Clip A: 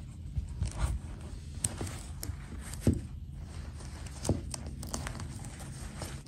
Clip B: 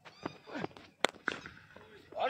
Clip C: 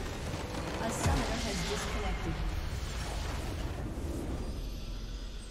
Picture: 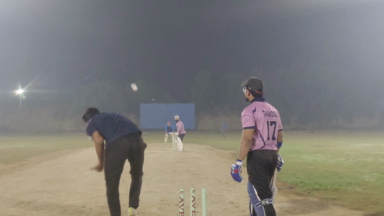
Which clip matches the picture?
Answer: B